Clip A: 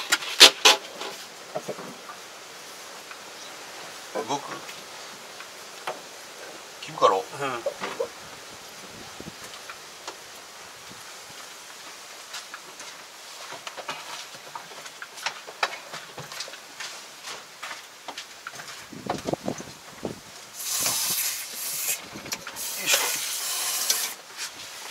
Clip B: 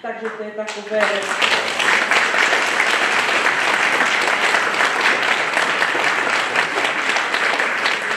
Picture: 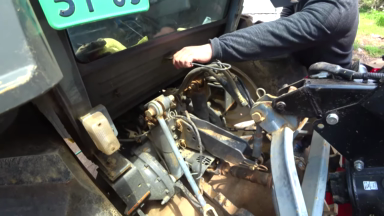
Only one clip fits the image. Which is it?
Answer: A